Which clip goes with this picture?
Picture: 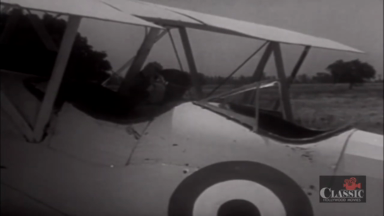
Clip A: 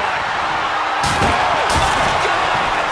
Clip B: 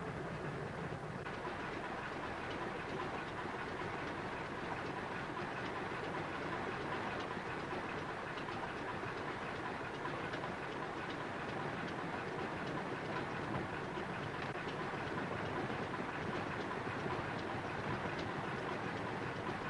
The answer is B